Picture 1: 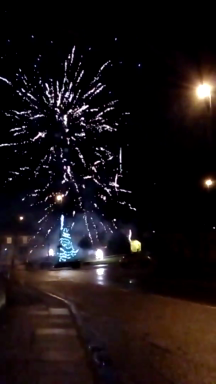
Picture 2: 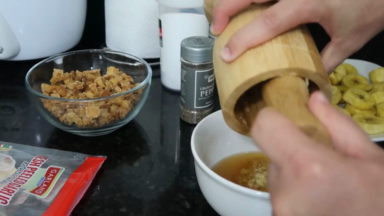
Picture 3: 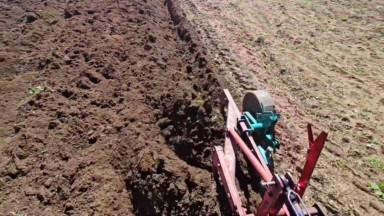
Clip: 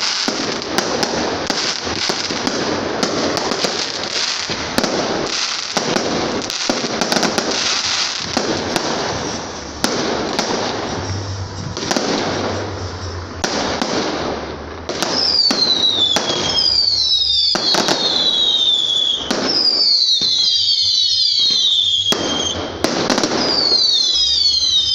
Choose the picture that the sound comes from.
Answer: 1